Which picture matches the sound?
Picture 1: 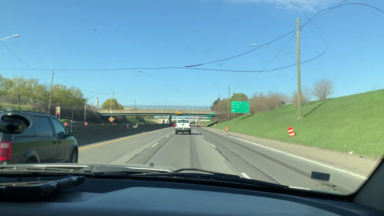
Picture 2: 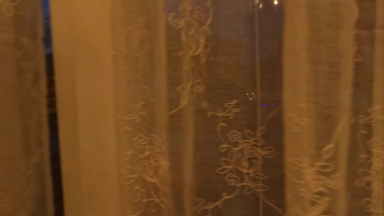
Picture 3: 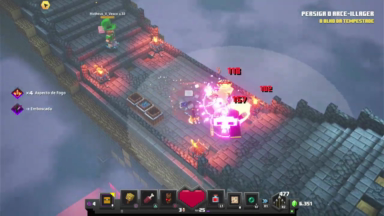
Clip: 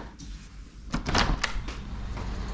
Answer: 2